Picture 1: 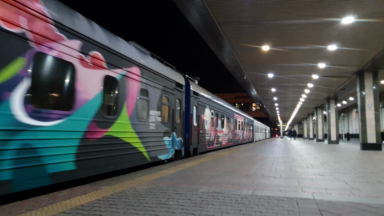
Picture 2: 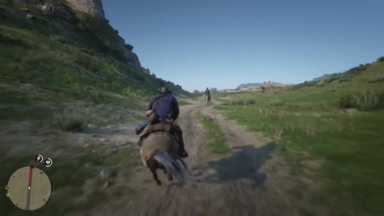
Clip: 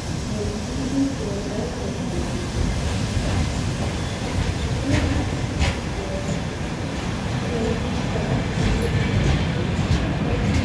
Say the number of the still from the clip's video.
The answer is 1